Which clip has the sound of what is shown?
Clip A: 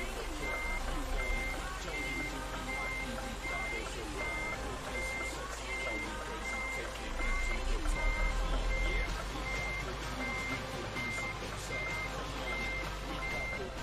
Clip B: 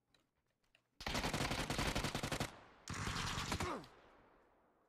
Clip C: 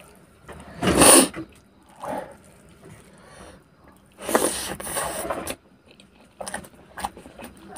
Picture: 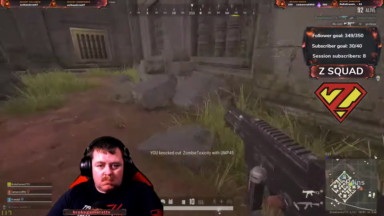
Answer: B